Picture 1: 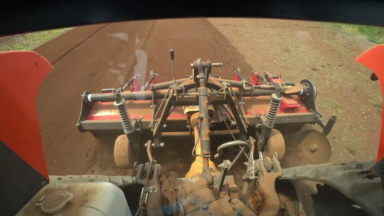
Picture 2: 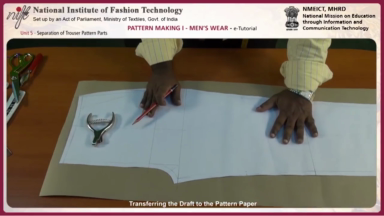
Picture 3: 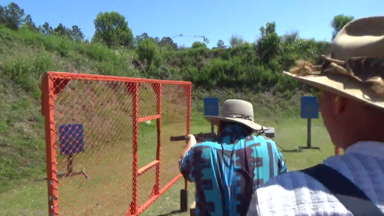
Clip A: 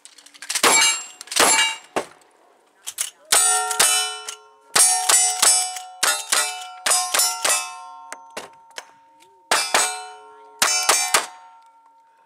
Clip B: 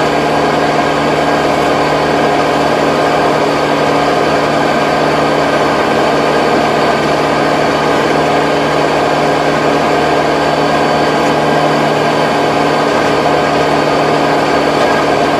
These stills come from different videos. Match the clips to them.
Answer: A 3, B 1